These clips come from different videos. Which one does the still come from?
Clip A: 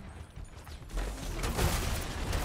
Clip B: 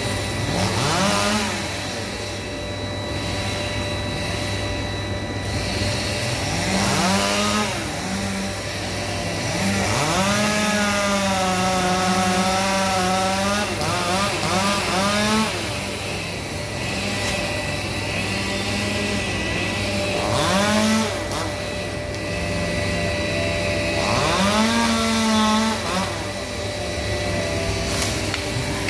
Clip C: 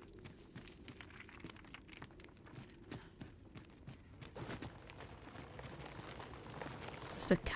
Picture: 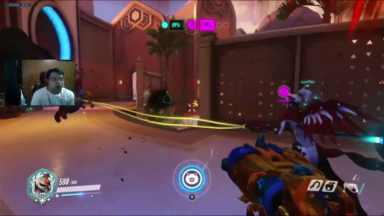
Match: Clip A